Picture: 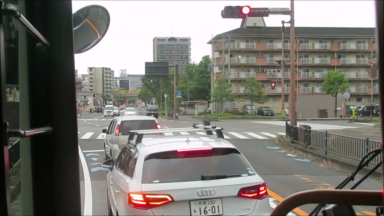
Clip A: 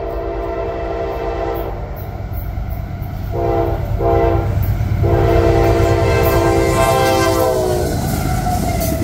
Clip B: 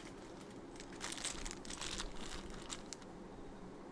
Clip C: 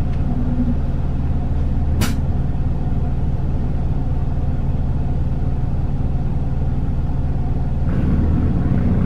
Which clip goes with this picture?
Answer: C